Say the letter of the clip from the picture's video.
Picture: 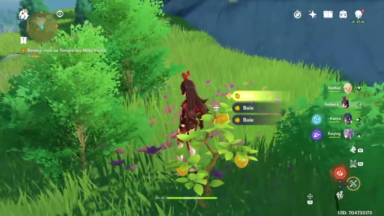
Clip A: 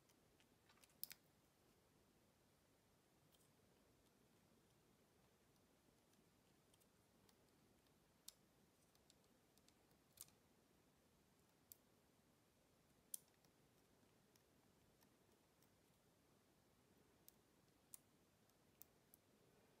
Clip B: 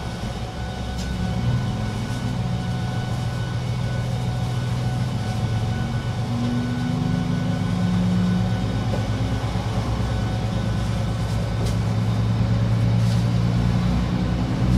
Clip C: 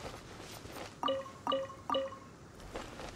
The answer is C